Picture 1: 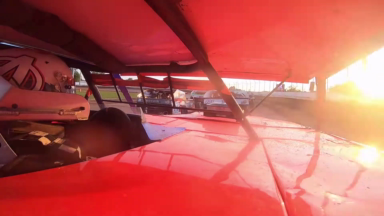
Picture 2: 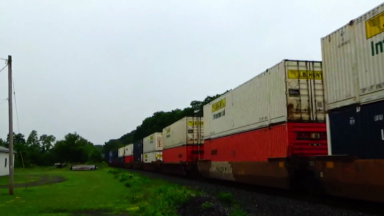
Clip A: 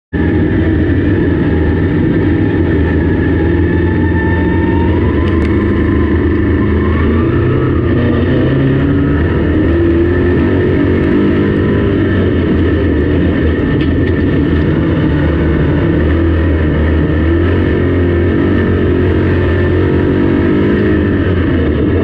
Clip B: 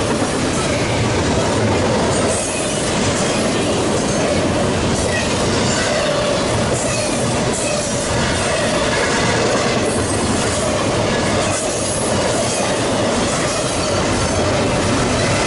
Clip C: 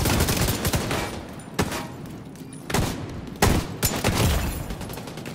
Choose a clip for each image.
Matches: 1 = A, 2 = B